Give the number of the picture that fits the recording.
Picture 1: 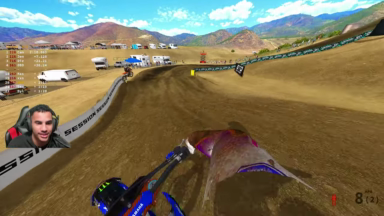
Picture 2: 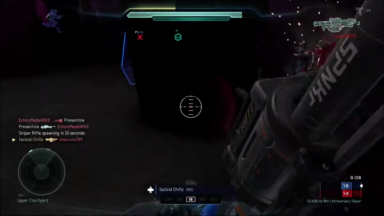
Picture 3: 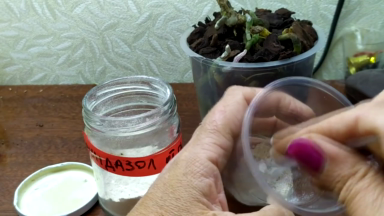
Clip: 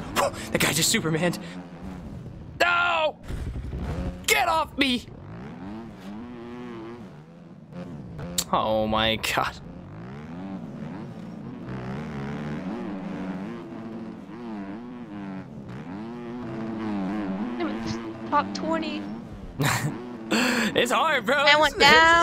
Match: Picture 1